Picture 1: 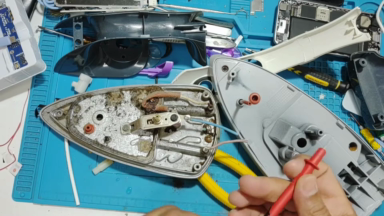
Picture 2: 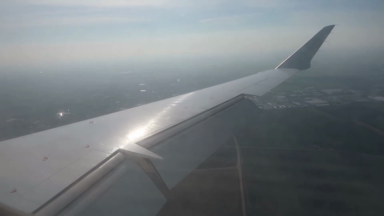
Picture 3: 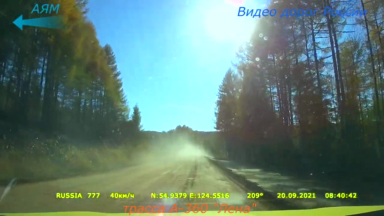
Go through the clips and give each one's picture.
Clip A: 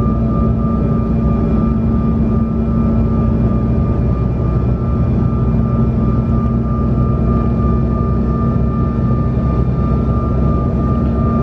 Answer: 2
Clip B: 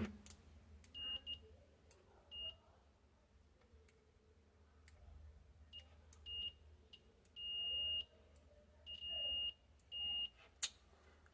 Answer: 1